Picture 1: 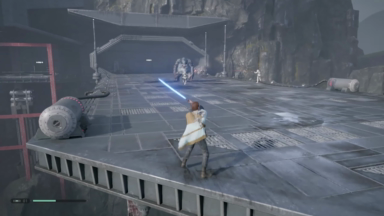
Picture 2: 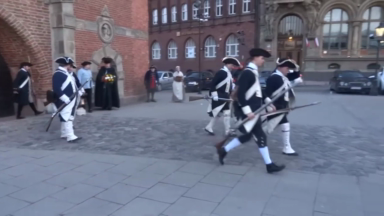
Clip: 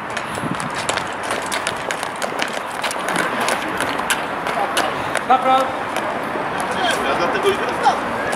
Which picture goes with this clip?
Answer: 2